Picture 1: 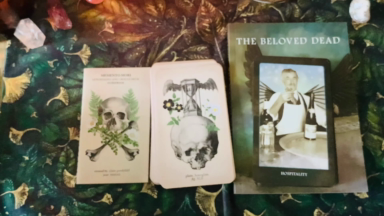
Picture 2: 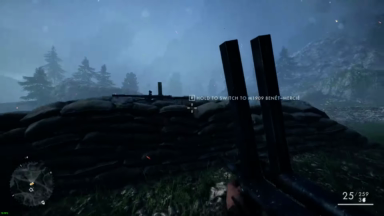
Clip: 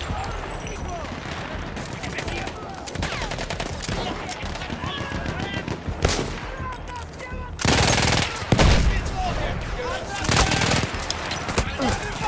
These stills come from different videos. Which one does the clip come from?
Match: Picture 2